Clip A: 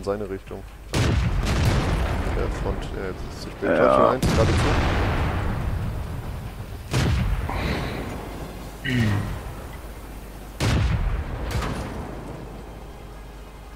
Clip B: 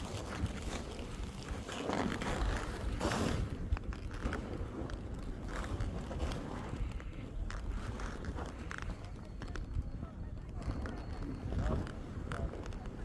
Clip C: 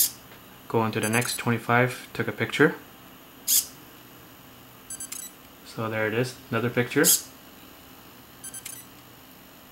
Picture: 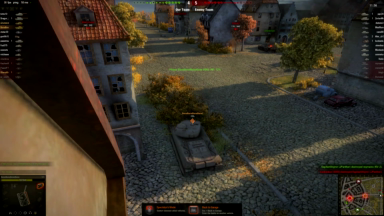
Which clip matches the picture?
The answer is A